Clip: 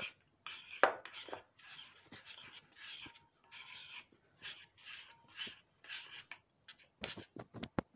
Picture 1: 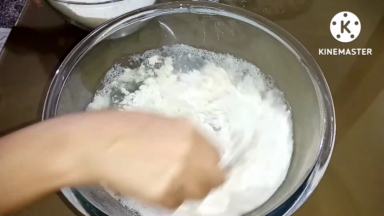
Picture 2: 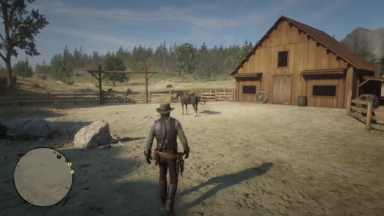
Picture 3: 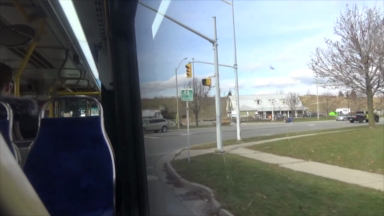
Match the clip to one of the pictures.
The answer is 1